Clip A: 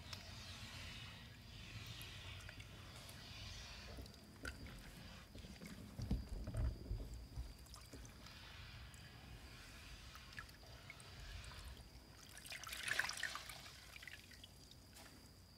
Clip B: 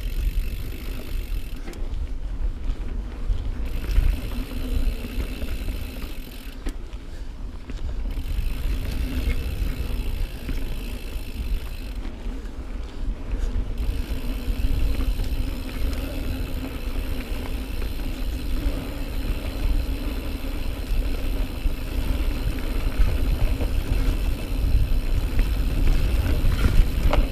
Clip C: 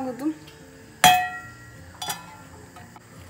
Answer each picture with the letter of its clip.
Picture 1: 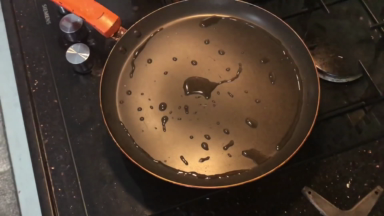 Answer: C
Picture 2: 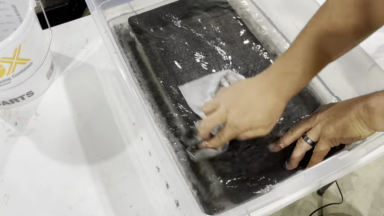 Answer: A